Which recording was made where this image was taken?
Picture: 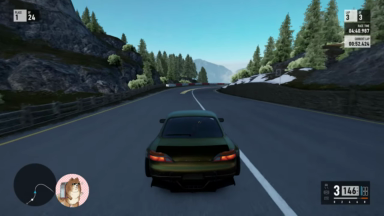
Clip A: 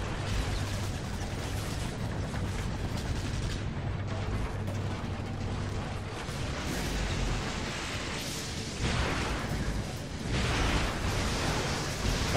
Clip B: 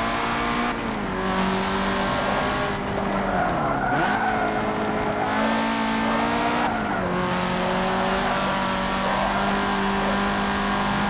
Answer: B